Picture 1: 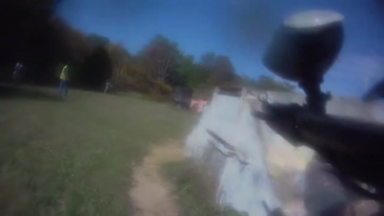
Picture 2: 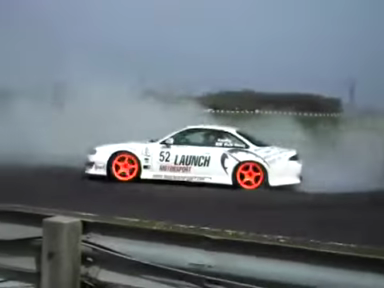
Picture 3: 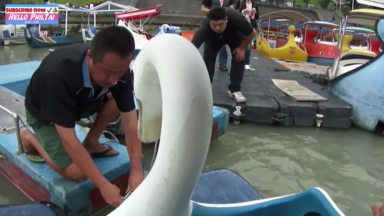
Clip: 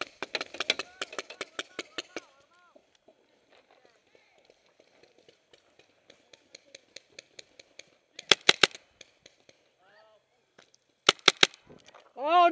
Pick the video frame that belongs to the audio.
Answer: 1